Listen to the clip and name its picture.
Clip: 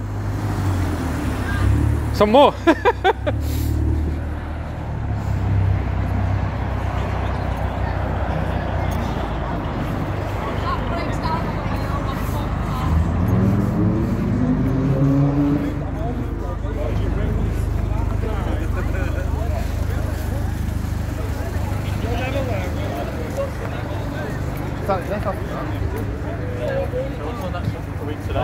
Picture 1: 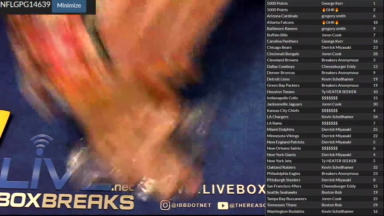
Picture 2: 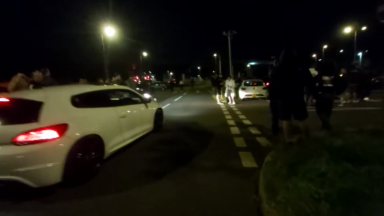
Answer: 2